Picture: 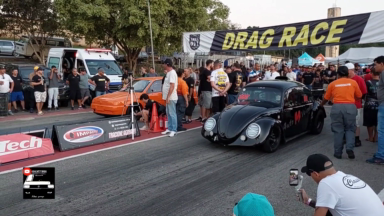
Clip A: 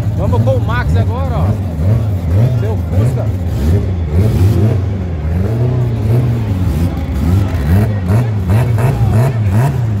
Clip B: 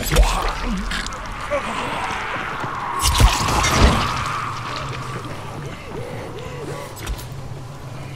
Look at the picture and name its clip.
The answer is A